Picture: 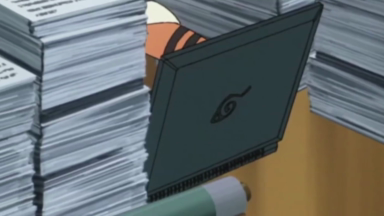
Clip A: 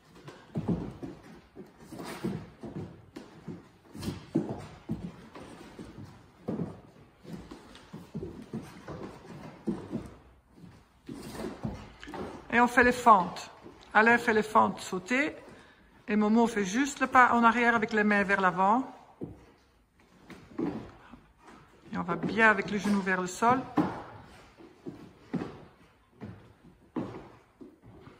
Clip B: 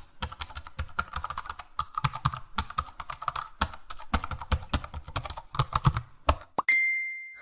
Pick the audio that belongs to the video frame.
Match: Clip B